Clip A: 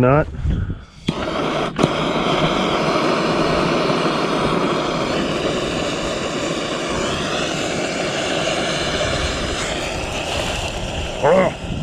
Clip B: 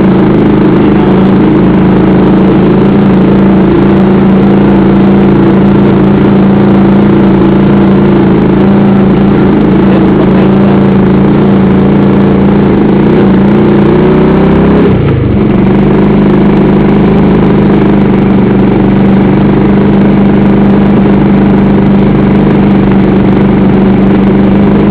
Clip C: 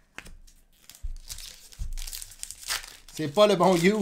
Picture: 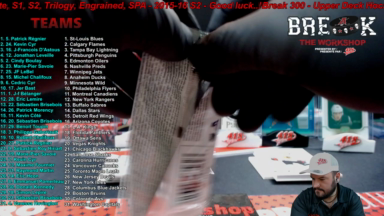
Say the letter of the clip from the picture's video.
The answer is C